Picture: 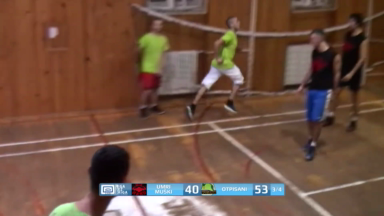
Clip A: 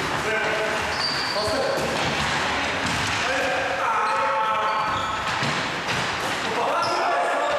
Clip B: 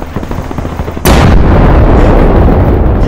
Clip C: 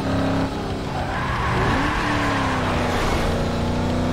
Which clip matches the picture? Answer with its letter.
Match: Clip A